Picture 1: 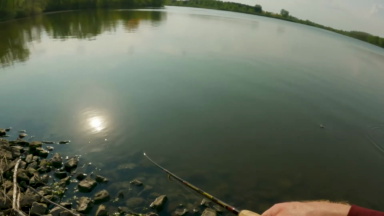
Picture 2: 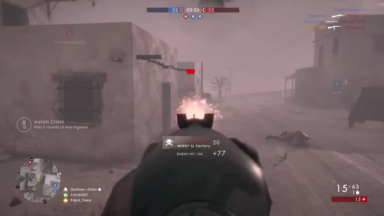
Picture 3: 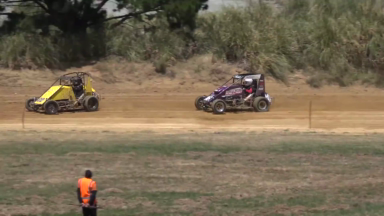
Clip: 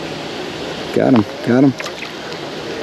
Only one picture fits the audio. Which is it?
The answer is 1